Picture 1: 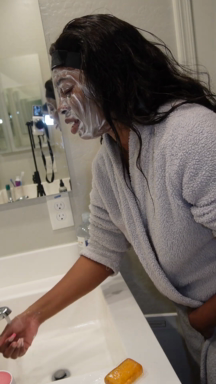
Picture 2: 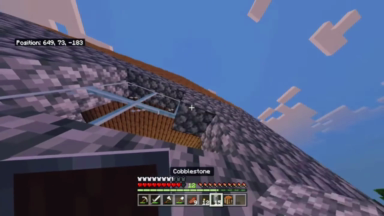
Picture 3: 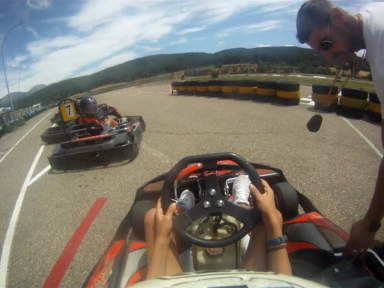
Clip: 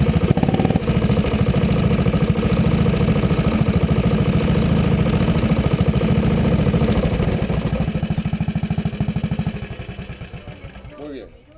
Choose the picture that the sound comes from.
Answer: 3